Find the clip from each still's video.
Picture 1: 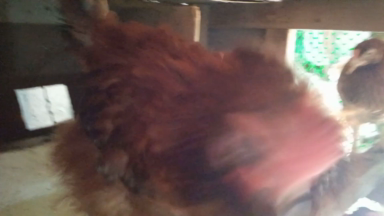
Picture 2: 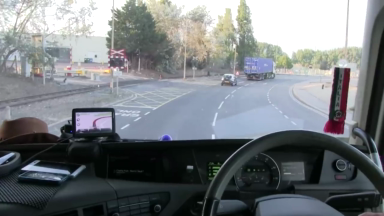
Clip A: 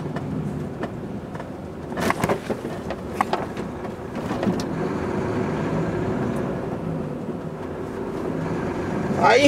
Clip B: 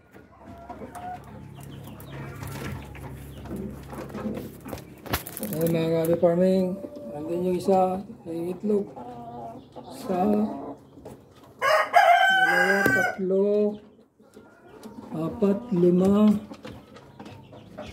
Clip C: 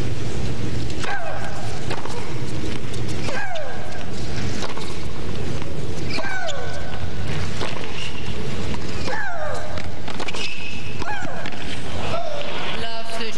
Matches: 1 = B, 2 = A